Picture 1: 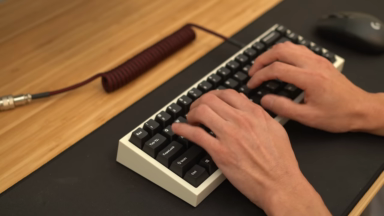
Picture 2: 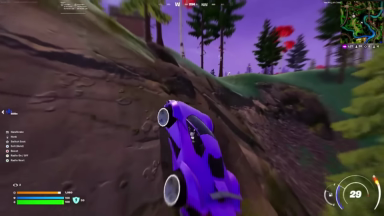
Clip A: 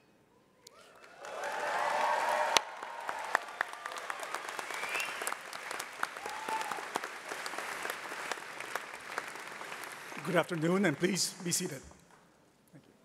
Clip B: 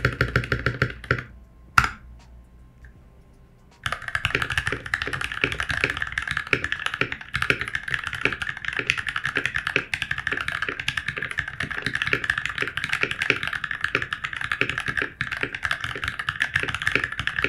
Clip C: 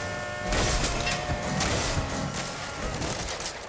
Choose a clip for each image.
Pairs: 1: B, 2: C